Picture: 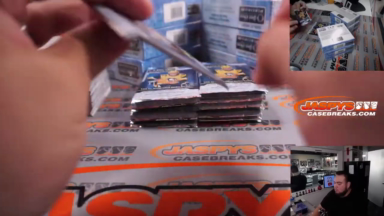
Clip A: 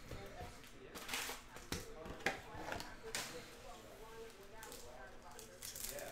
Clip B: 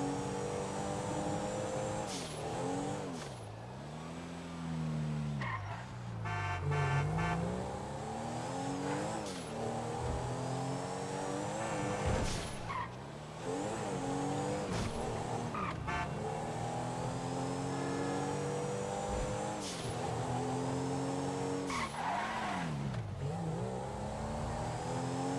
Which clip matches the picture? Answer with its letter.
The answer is A